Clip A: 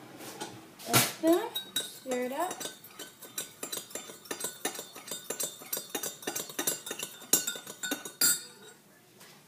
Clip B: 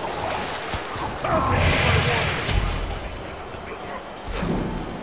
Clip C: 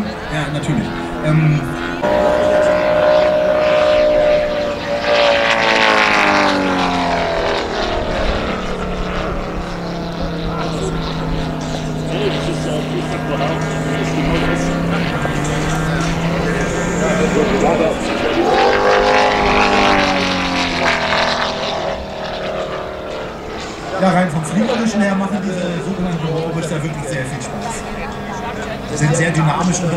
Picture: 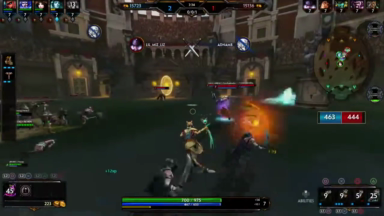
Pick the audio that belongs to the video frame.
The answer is B